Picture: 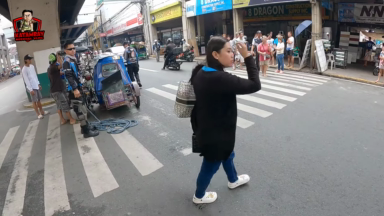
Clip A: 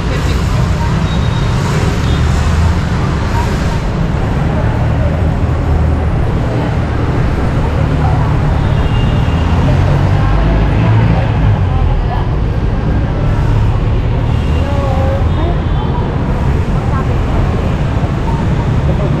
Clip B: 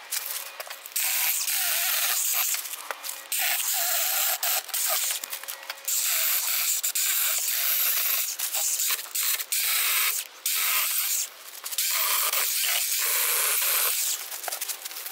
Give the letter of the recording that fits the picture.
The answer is A